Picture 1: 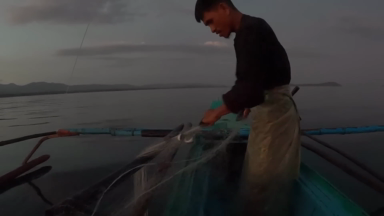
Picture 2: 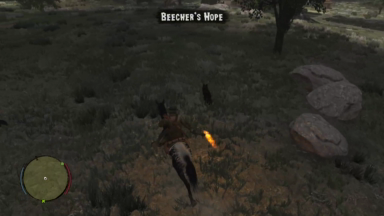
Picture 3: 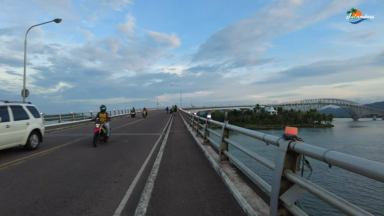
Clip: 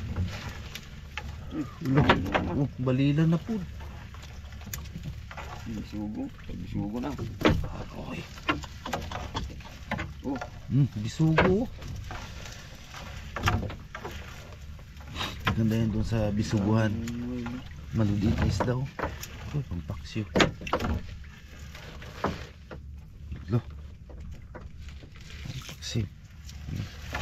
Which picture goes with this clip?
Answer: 1